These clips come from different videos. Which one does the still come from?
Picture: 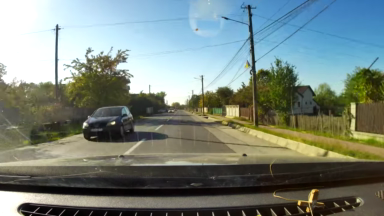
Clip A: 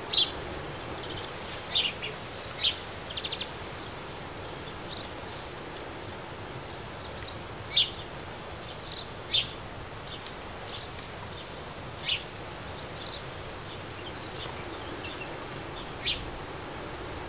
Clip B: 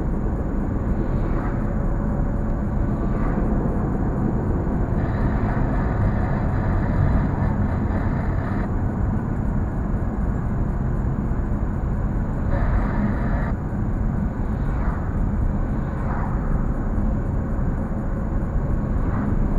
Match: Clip B